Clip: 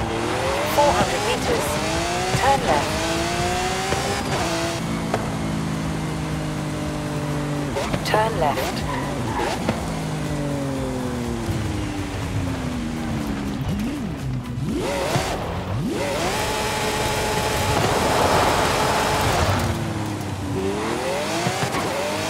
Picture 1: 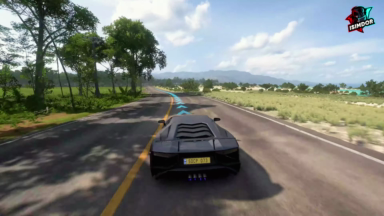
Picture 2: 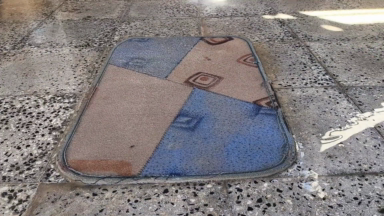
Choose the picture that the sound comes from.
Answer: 1